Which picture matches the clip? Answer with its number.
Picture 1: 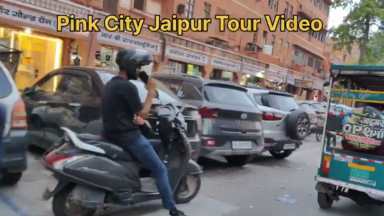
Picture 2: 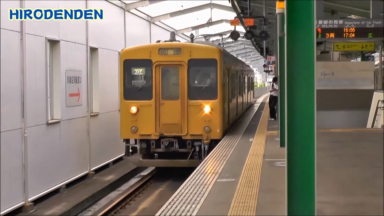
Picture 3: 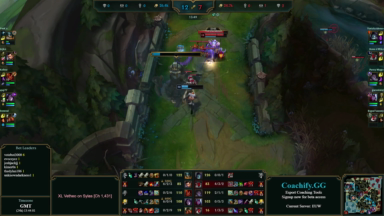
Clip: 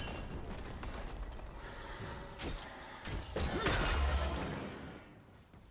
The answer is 3